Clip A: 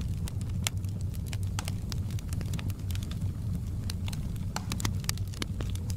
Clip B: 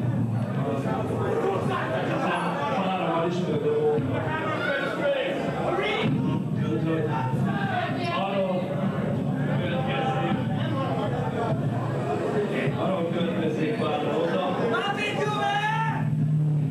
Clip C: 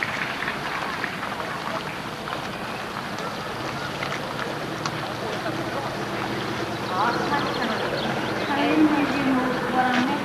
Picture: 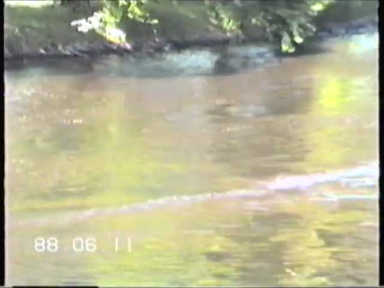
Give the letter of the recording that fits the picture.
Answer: C